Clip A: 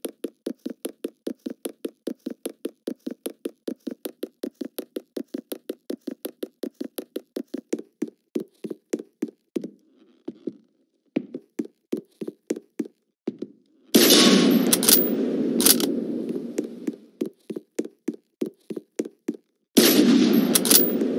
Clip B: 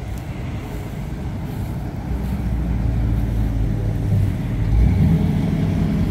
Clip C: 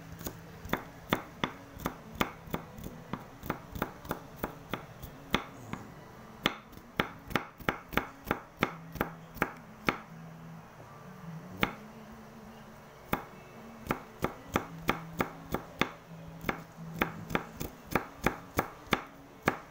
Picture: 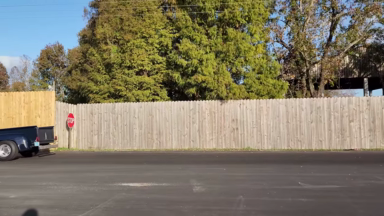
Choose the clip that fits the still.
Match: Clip B